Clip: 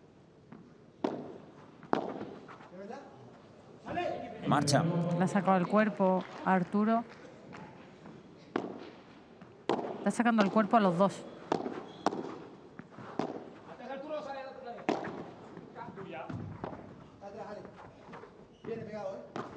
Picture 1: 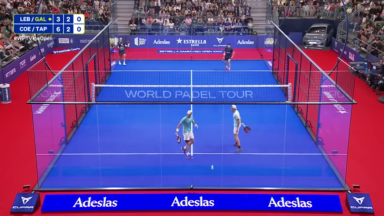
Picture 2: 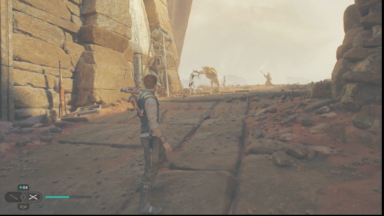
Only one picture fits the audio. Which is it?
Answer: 1